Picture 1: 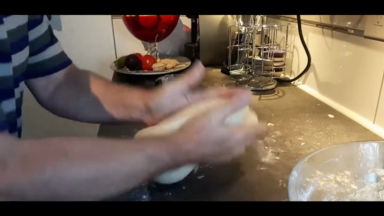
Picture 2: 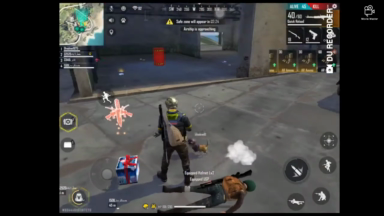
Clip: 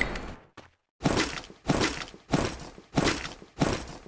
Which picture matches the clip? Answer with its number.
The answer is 2